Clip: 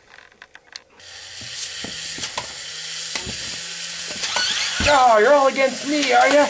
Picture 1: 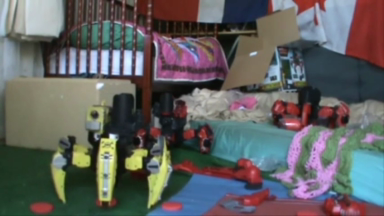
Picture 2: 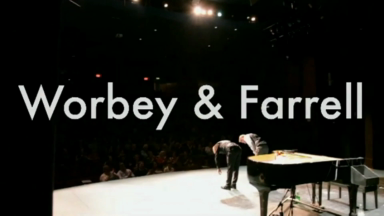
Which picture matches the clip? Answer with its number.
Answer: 1